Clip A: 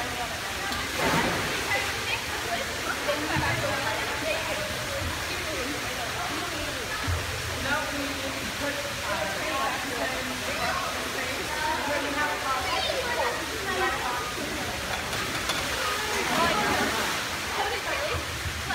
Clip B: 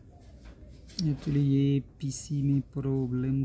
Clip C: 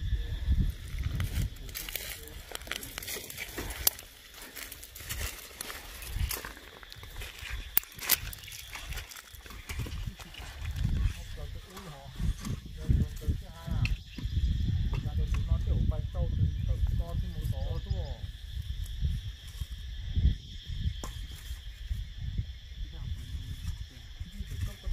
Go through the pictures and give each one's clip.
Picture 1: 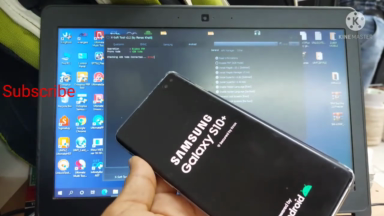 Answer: B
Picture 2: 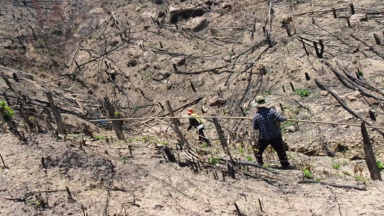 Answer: C